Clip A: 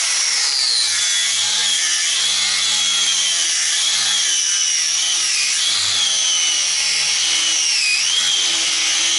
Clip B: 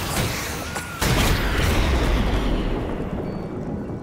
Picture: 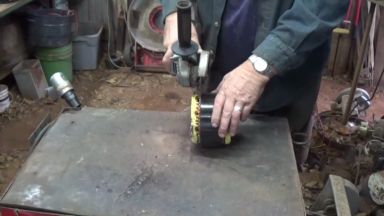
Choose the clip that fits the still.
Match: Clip A